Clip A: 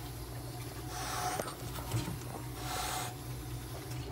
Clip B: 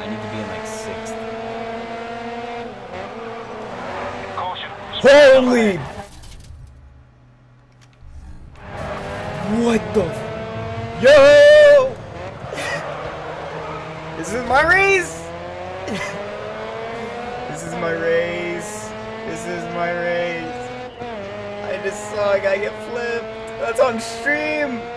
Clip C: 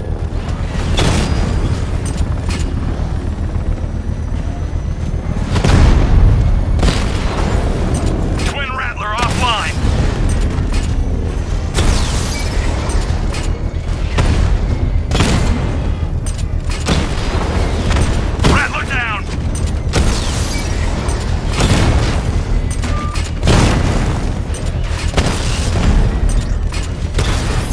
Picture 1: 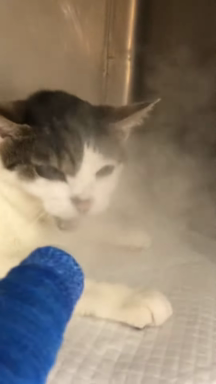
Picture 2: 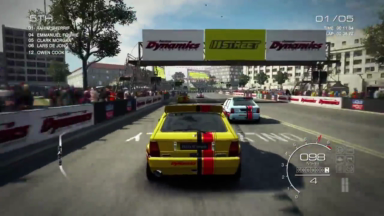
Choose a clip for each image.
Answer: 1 A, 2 B